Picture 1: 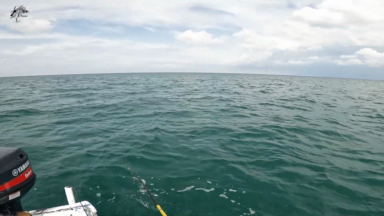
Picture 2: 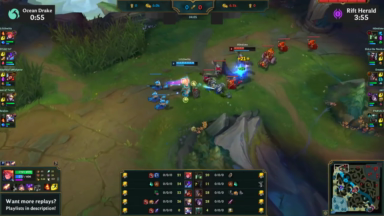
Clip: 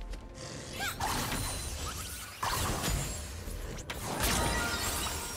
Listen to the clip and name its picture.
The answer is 2